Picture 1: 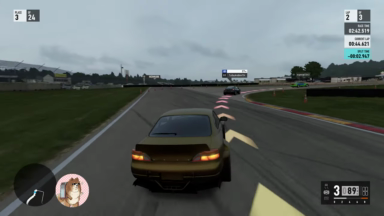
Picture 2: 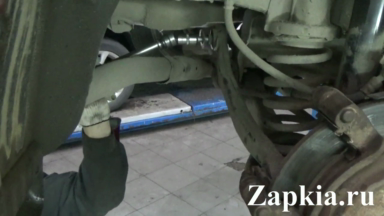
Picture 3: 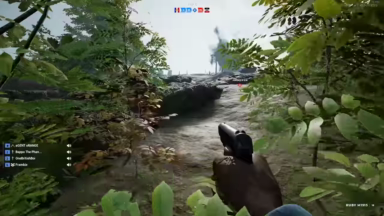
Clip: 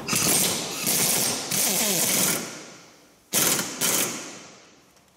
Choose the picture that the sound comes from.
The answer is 2